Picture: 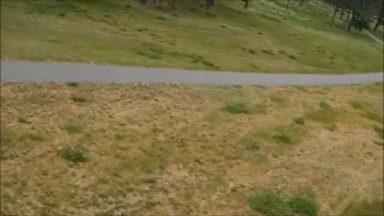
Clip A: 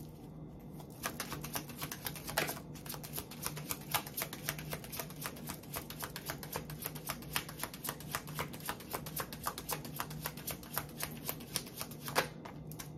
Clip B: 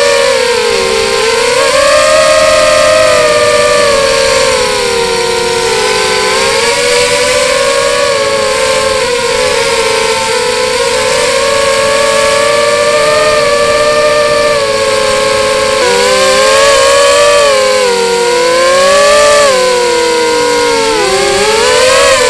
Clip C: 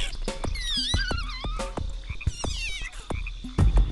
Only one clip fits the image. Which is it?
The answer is B